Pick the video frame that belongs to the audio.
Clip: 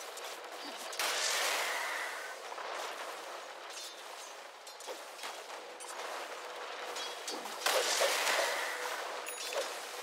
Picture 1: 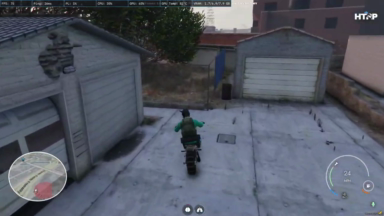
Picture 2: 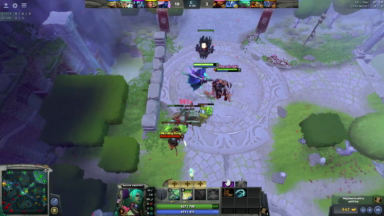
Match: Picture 2